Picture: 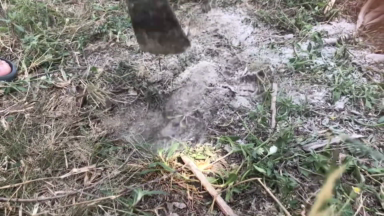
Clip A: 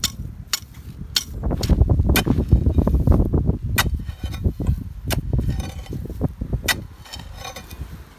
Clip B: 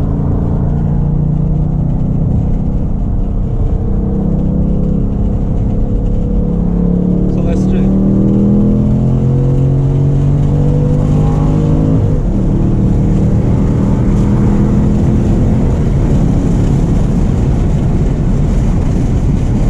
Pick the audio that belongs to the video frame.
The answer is A